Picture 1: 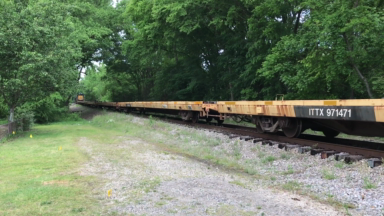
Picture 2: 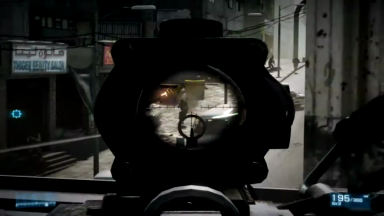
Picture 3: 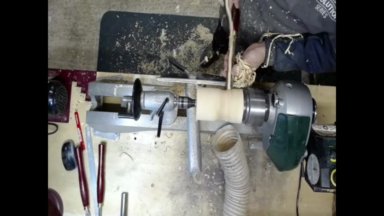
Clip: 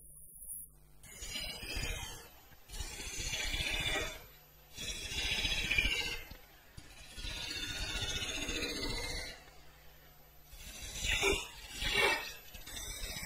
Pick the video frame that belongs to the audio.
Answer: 3